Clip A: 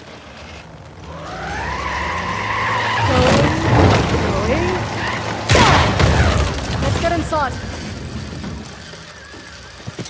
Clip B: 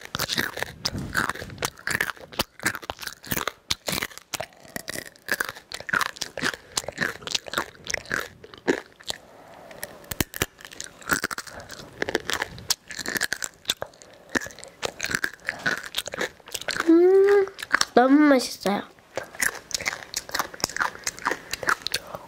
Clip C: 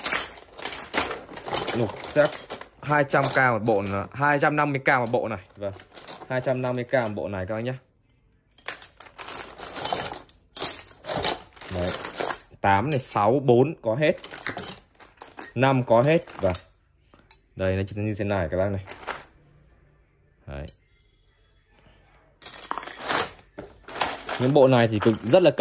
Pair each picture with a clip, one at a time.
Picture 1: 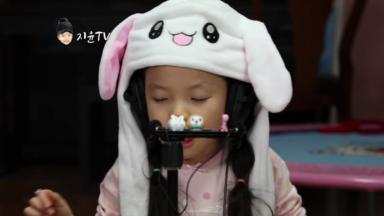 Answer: B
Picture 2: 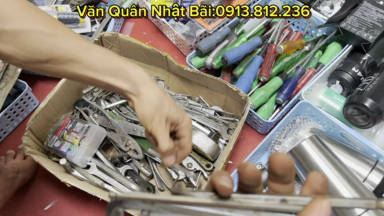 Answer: C